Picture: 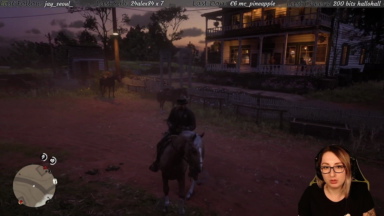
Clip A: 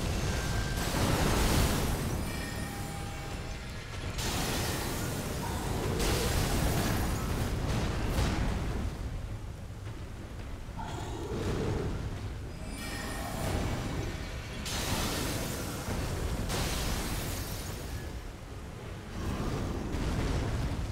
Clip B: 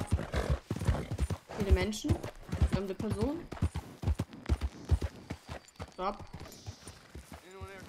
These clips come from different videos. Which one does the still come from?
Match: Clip B